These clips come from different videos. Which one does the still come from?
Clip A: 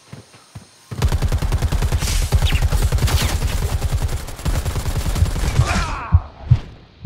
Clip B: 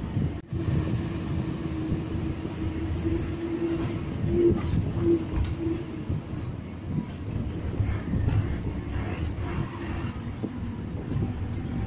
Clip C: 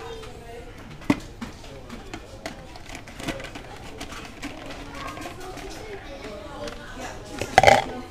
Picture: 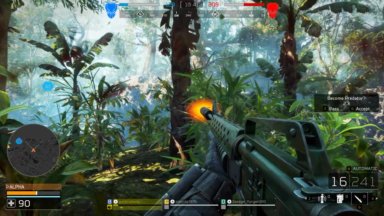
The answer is A